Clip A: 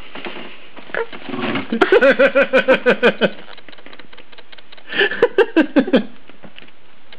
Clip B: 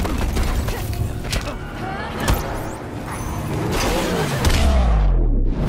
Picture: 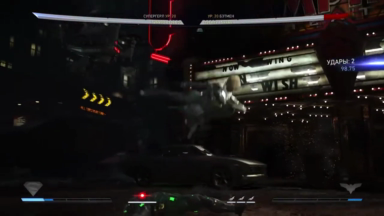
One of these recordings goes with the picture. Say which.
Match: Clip B